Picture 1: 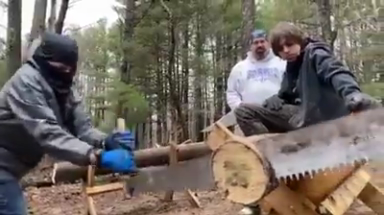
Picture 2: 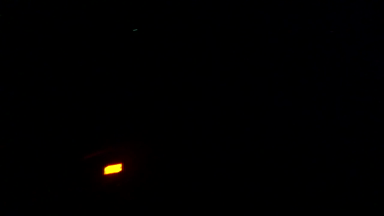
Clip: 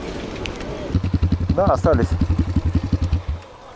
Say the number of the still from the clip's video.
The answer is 2